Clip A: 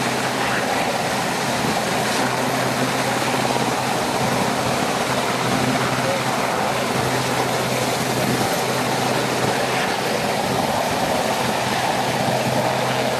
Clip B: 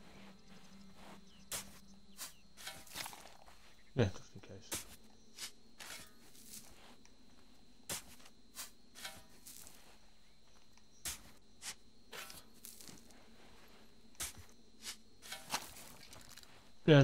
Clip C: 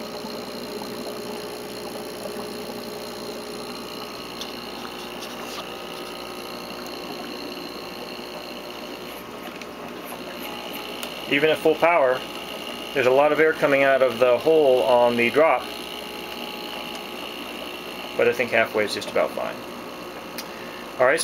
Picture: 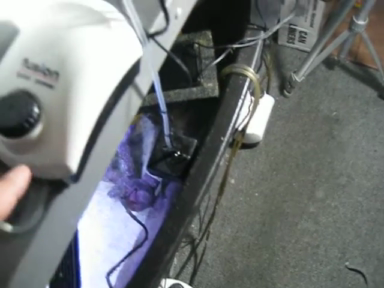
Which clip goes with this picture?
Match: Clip C